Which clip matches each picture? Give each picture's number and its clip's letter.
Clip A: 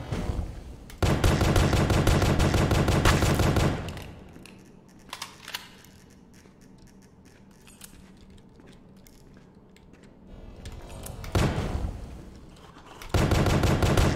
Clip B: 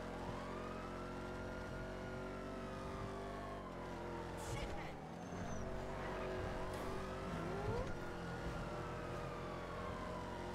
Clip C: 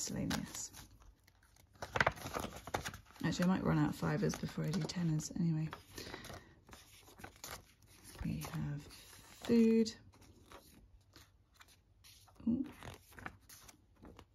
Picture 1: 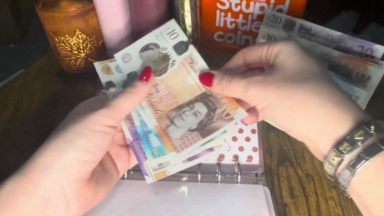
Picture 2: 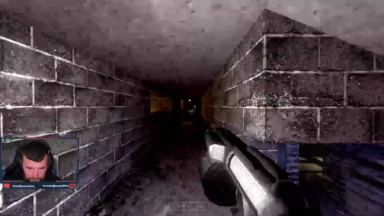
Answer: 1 C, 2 A